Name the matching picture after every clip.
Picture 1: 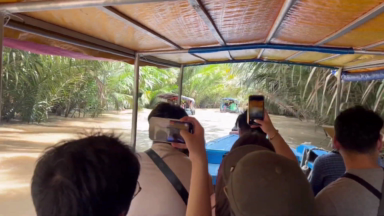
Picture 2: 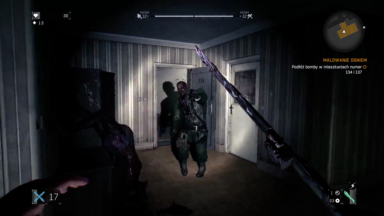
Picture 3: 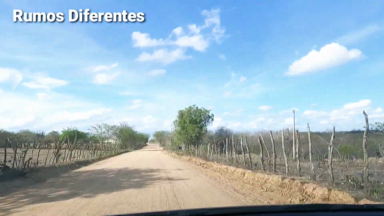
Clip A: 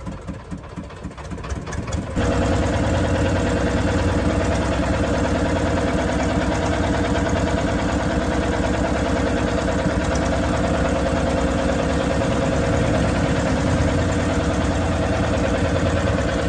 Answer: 1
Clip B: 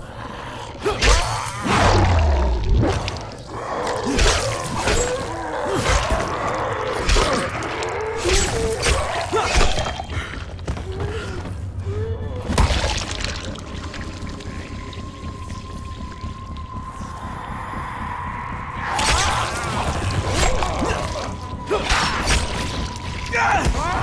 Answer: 2